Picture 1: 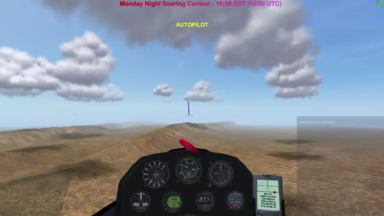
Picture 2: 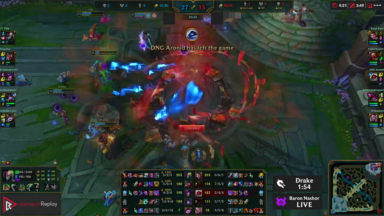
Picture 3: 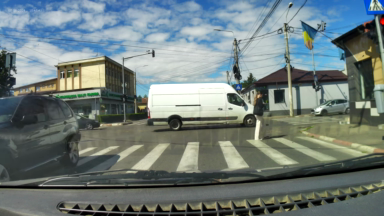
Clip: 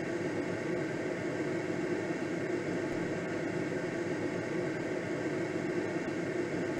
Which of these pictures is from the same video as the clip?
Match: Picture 1